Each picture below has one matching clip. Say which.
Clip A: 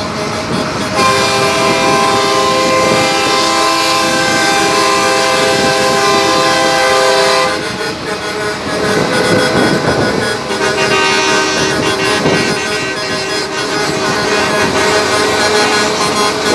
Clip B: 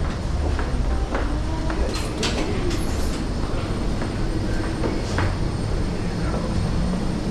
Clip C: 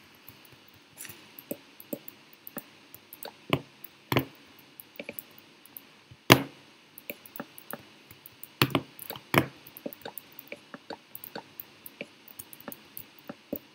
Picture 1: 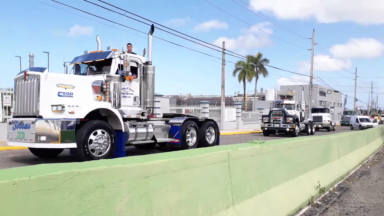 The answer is A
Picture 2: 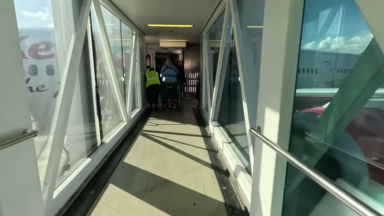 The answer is B